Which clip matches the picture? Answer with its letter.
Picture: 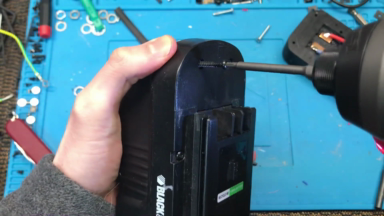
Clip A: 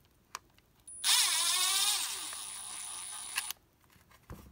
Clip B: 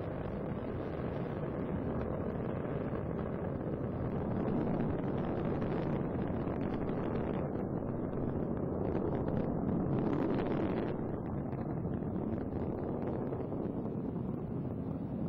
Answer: A